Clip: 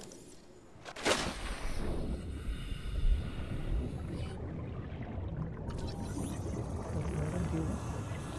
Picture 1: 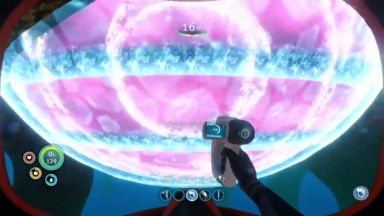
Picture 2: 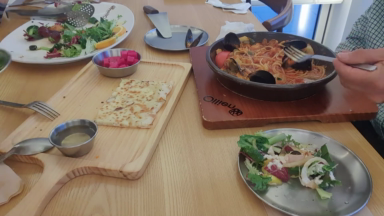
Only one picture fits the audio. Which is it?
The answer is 1